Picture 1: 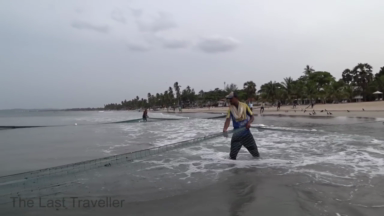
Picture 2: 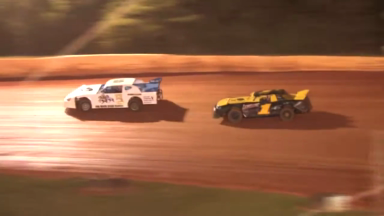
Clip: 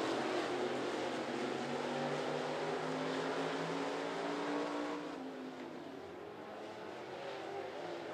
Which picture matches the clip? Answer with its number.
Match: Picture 2